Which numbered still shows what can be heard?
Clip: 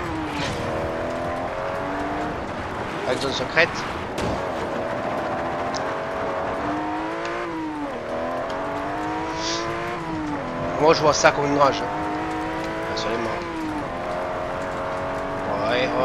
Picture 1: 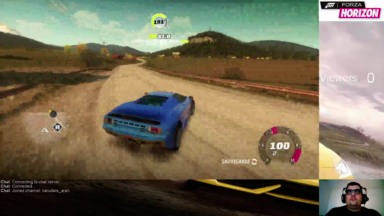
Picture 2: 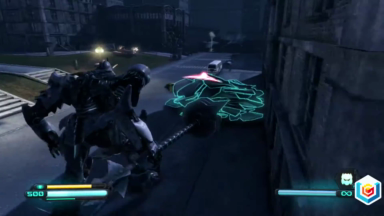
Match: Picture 1